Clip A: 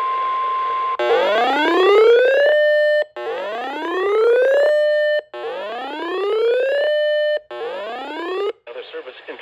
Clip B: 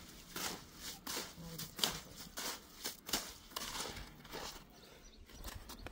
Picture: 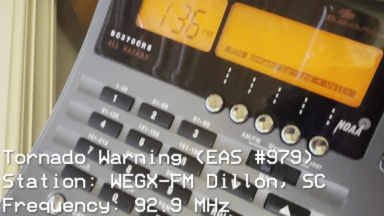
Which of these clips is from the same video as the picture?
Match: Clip A